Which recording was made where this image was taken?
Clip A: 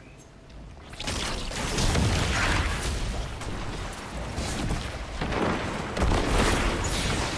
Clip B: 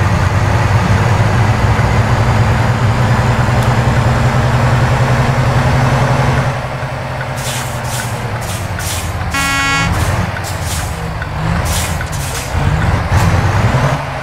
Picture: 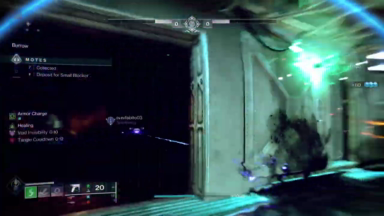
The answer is A